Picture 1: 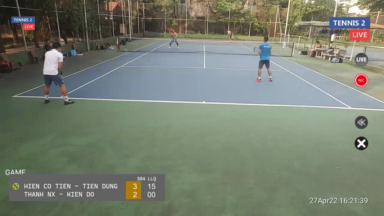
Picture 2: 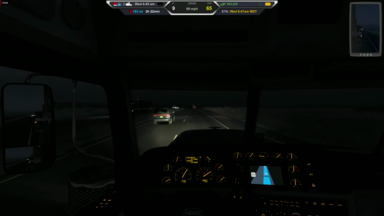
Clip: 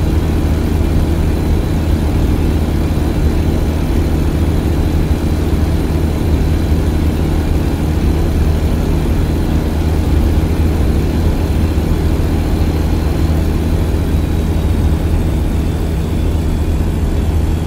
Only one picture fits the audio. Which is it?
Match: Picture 2